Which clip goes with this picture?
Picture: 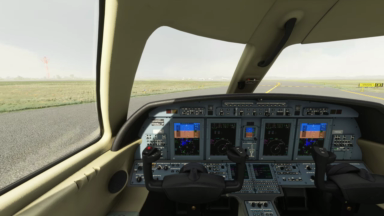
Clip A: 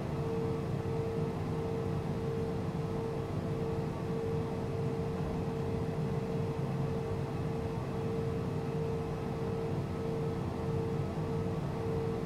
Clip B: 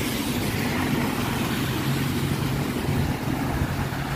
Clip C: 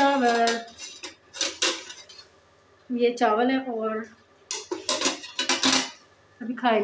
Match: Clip A